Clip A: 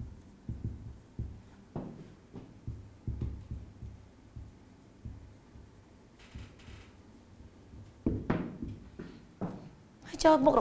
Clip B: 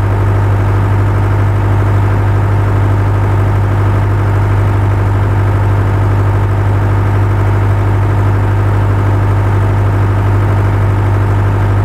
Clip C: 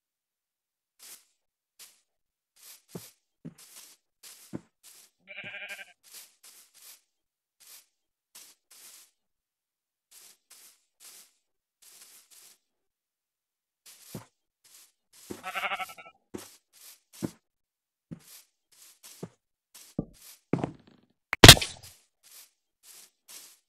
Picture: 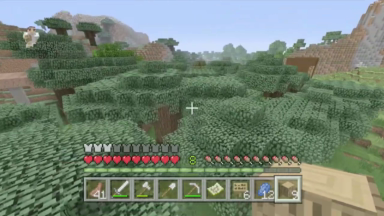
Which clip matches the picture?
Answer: C